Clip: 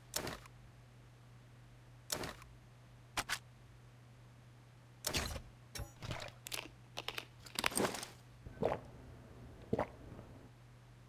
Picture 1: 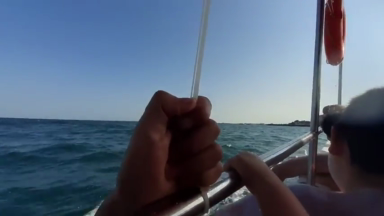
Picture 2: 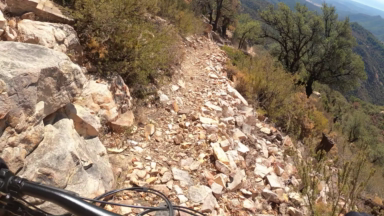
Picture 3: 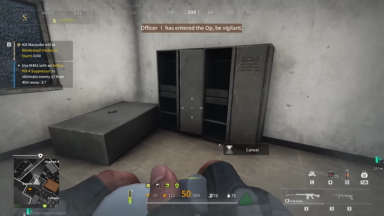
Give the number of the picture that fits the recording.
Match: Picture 3